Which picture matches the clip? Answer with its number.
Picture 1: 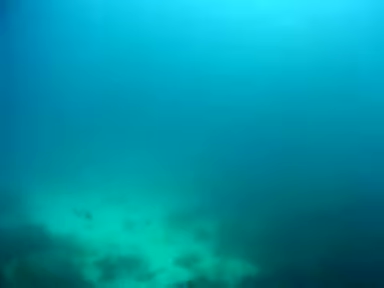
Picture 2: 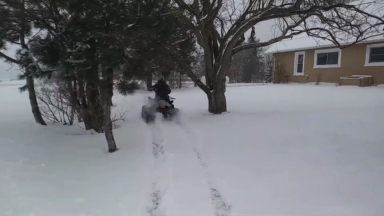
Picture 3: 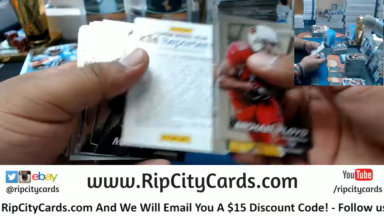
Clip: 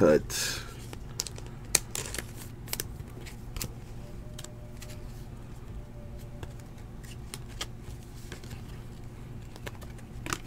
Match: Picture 3